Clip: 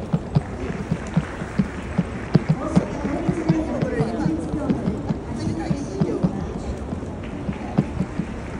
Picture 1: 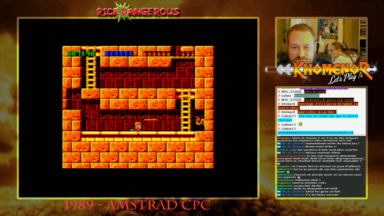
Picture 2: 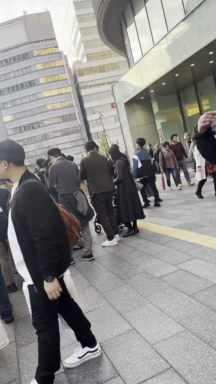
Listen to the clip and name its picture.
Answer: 2